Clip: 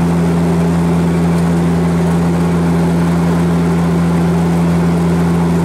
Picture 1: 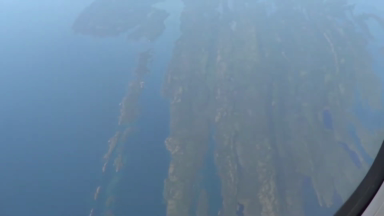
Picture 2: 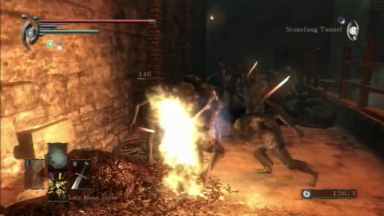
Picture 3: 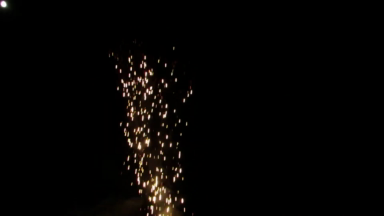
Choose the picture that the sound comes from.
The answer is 1